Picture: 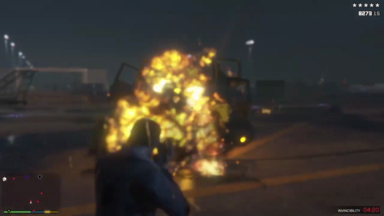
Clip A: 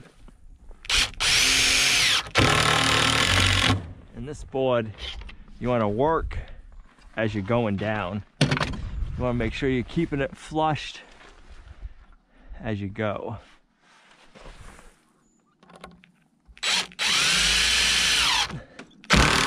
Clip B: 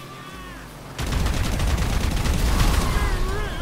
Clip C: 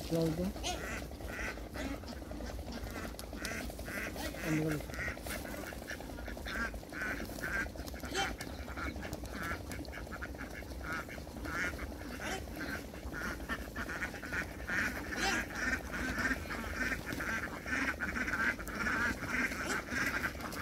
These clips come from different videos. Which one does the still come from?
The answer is B